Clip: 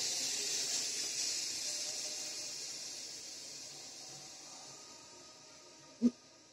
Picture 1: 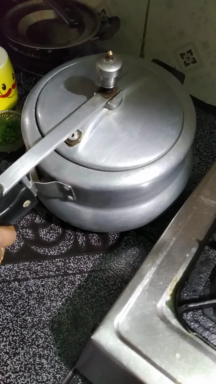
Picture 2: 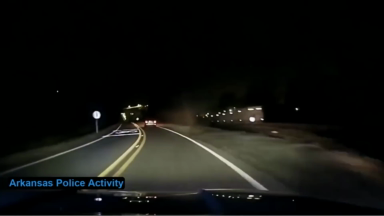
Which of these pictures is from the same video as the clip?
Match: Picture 1